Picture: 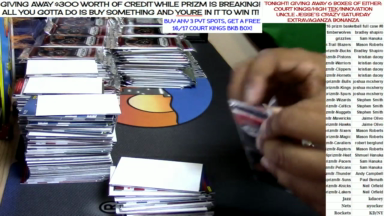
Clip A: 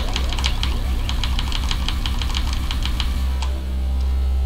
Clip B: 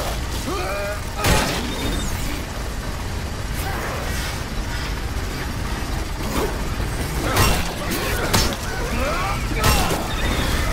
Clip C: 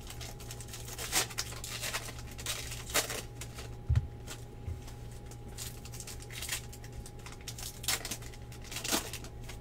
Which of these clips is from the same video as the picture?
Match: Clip C